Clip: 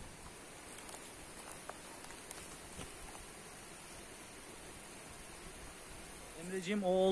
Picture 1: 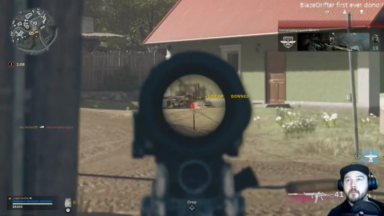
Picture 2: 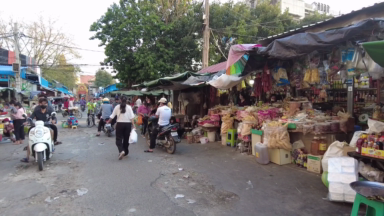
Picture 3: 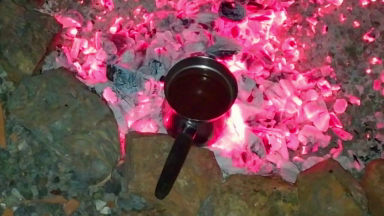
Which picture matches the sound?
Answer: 3